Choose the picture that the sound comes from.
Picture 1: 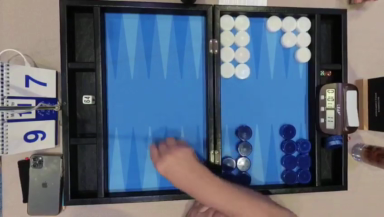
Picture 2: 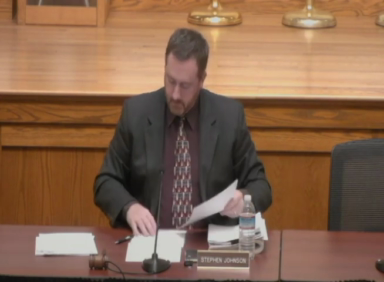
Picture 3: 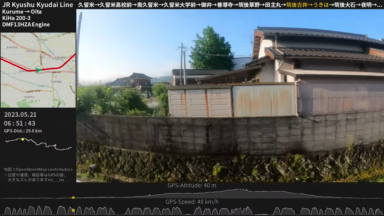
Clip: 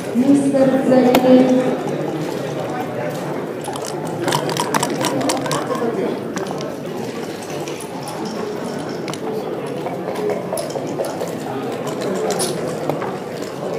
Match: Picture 1